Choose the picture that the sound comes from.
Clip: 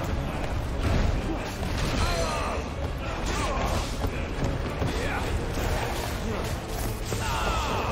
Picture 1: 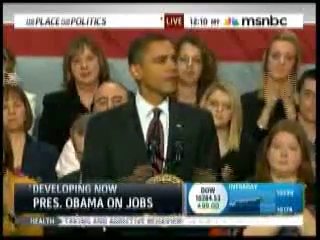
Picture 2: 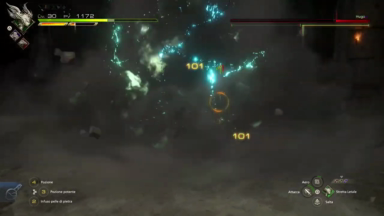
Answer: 2